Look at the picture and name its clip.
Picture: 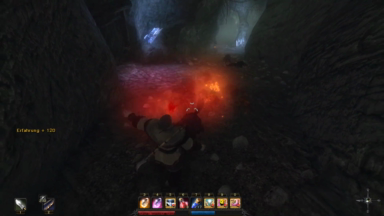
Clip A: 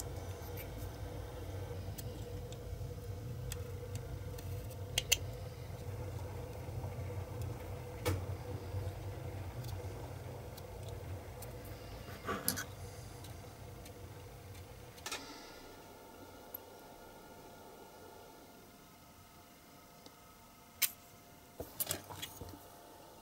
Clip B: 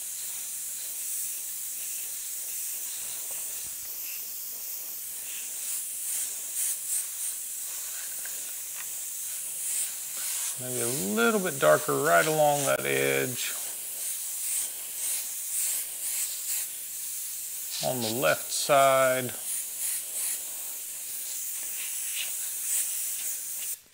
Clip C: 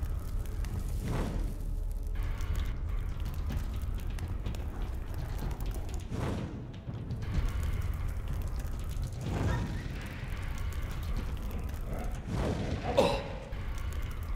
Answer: C